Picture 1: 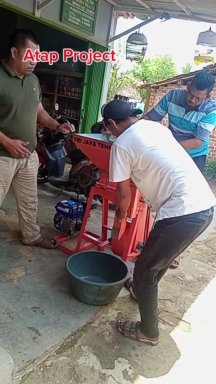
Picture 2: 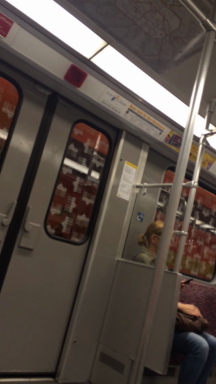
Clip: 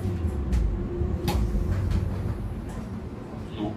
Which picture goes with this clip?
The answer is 2